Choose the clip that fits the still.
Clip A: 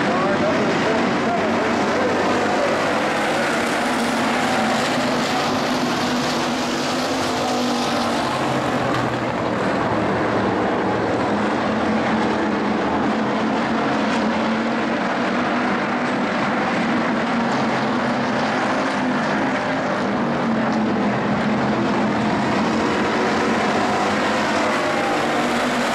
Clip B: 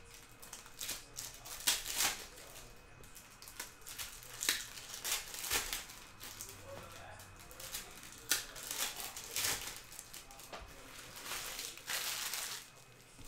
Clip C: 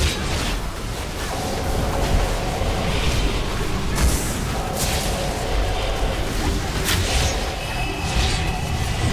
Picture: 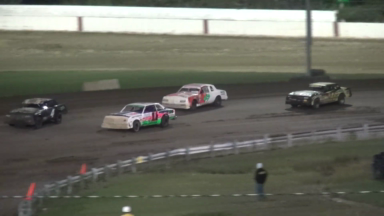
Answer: A